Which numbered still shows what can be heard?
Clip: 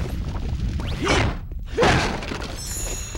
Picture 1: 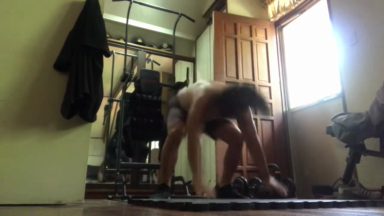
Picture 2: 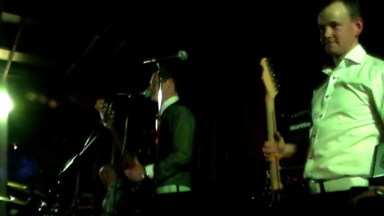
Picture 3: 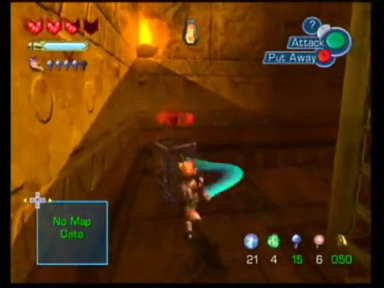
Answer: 3